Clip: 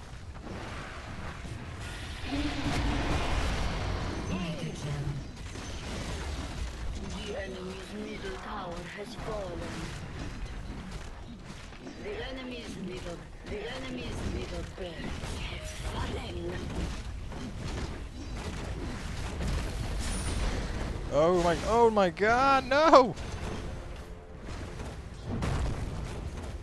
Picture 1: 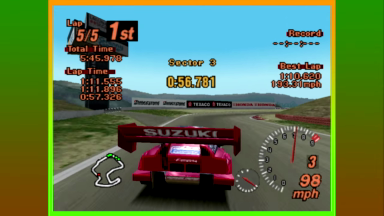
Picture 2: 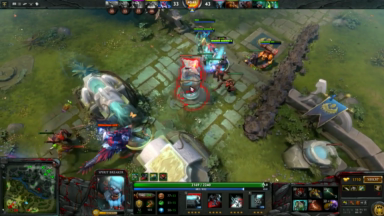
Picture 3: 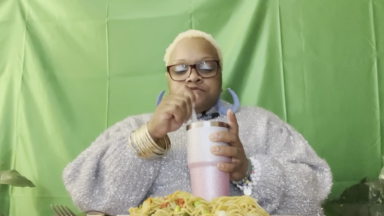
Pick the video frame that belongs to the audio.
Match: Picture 2